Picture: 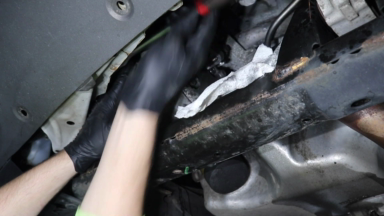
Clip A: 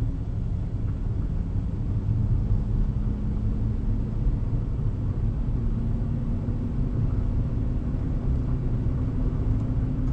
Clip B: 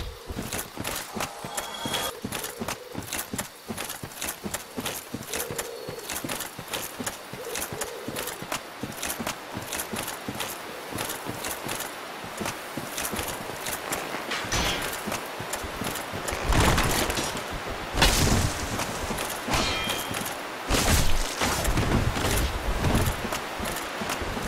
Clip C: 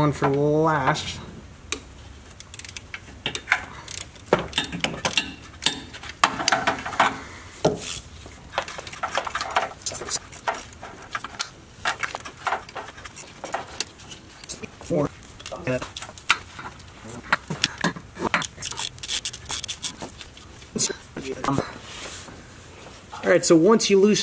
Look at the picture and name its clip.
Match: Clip C